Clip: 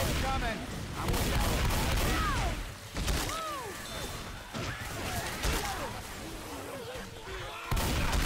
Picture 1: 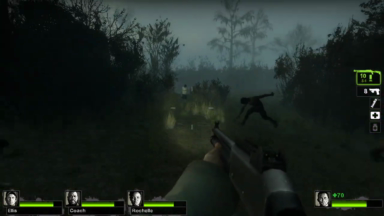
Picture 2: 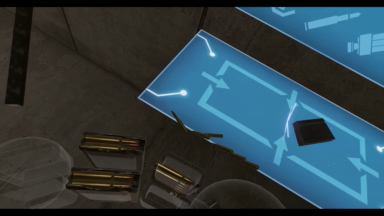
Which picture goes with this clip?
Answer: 1